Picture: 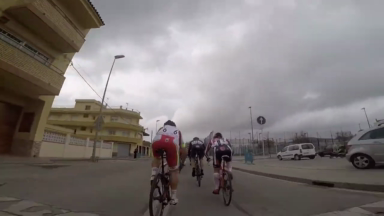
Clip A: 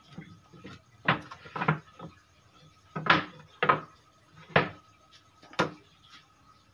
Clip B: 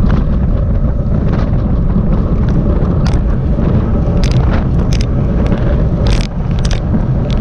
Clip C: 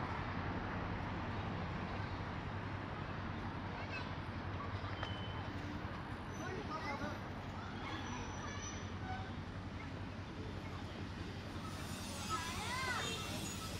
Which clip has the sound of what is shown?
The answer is B